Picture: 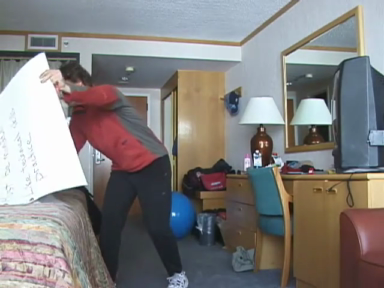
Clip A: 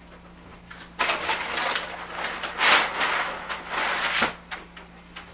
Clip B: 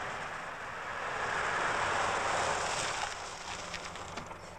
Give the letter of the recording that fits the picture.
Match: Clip A